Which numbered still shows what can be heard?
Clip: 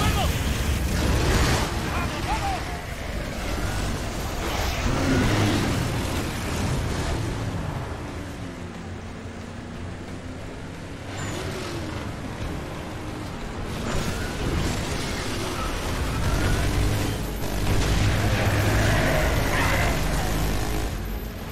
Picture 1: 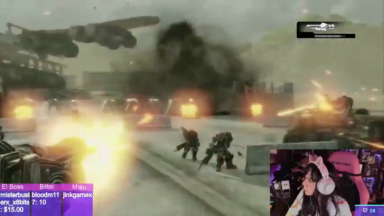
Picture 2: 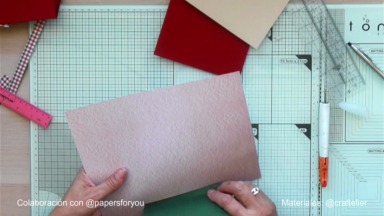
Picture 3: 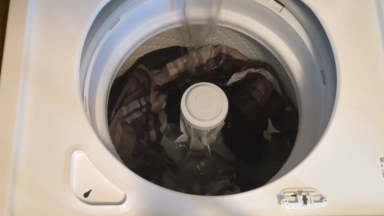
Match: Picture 1